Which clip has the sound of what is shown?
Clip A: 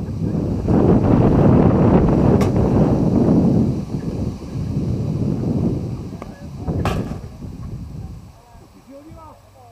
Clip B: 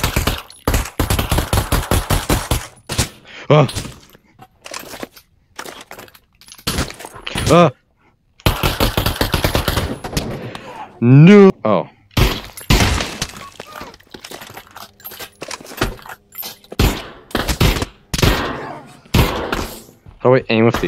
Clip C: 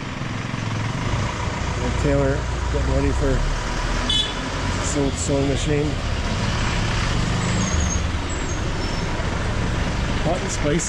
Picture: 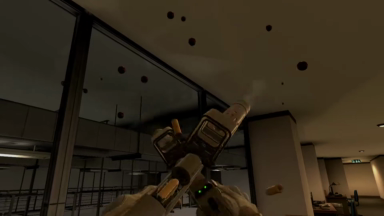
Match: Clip B